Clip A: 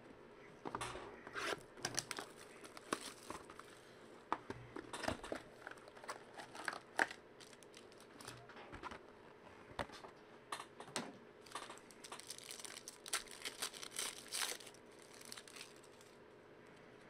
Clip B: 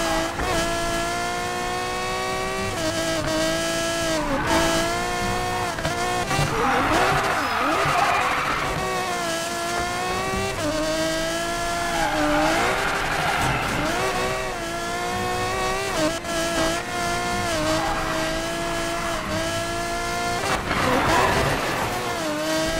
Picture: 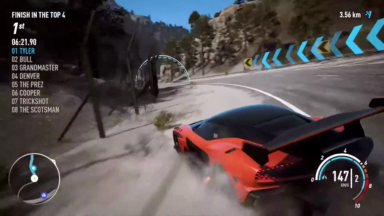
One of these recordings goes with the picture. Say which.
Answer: B